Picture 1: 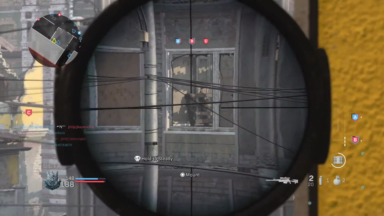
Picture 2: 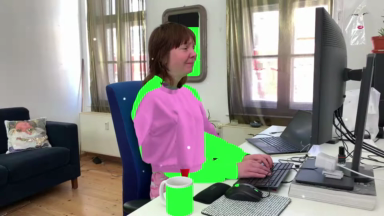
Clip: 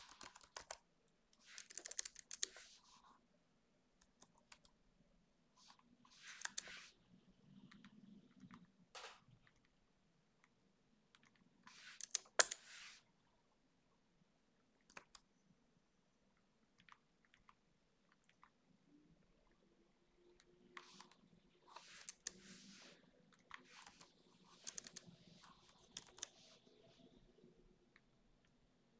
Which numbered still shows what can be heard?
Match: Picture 2